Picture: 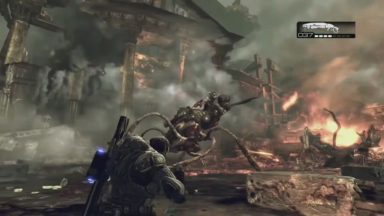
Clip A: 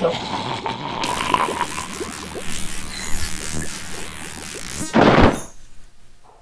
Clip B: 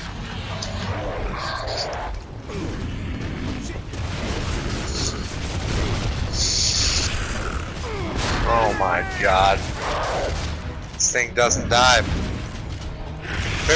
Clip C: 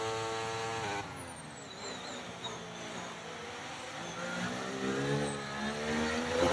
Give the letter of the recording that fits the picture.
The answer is B